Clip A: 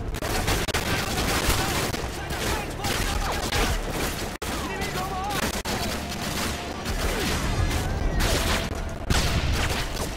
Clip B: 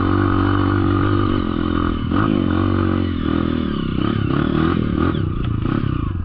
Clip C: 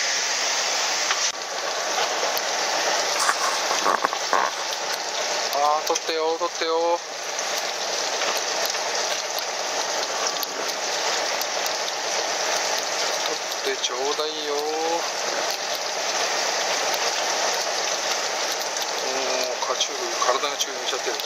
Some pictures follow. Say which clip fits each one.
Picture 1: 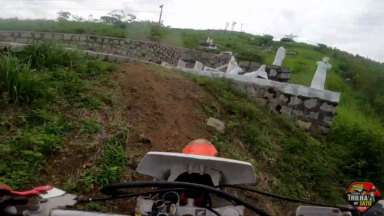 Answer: B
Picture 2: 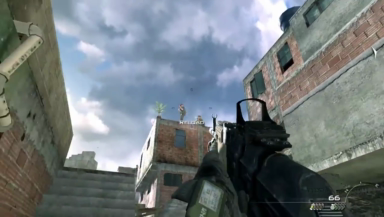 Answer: A